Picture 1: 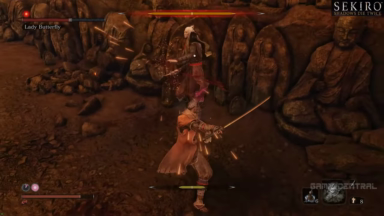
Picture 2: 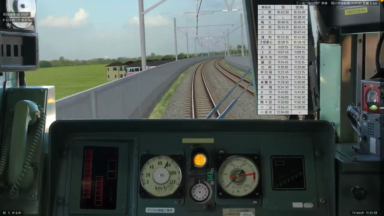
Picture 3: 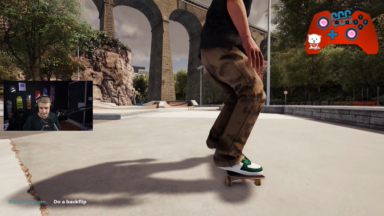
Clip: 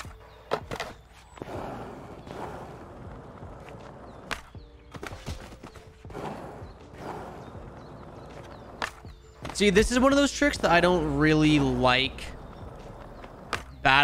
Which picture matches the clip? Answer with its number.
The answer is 3